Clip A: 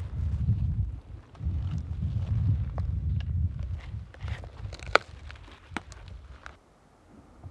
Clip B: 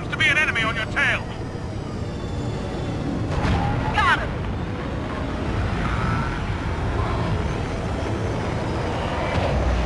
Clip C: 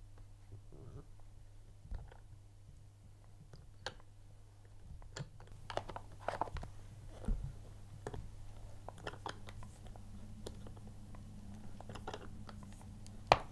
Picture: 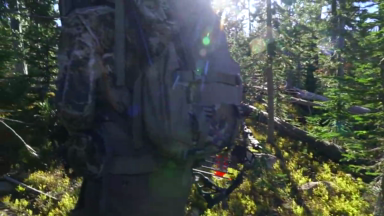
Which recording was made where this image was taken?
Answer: A